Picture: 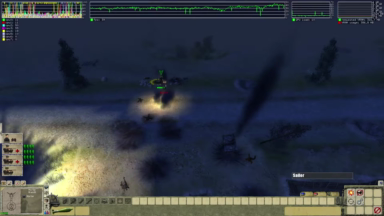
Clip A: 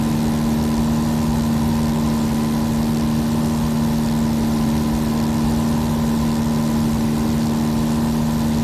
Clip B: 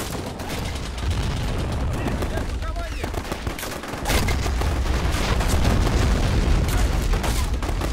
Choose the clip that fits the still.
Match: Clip B